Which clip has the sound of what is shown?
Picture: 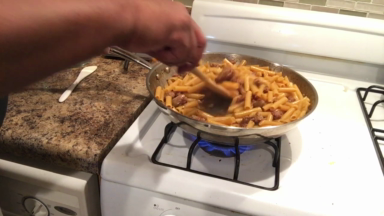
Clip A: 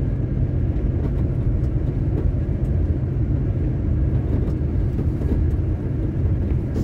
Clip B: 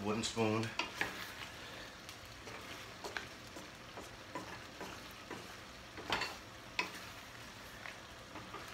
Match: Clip B